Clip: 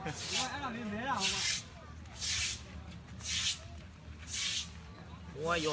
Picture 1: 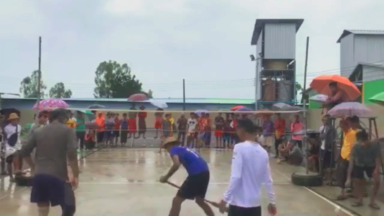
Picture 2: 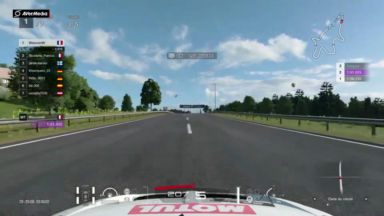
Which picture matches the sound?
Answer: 1